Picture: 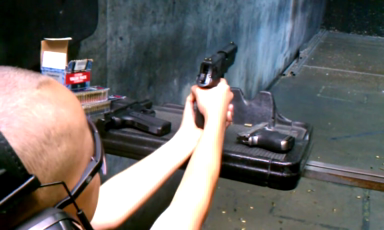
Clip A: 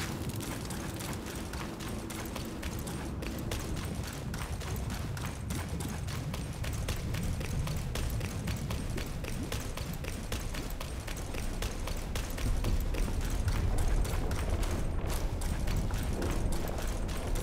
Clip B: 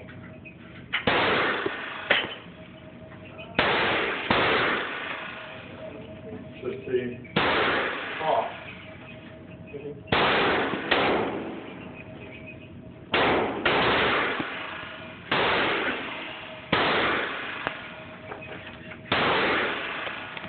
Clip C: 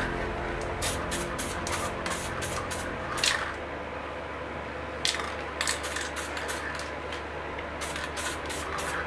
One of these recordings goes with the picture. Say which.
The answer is B